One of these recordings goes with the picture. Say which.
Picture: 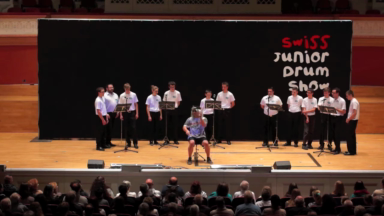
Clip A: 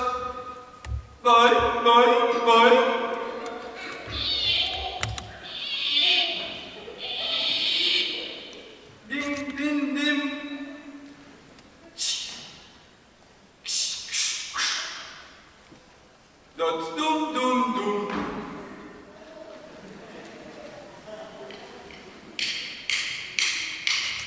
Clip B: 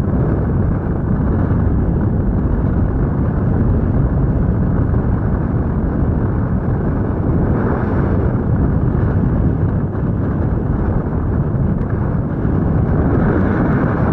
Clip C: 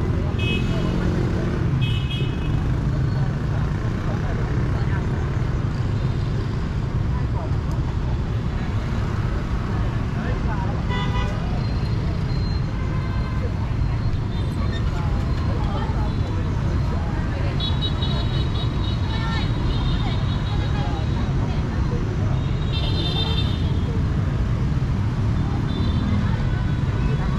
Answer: A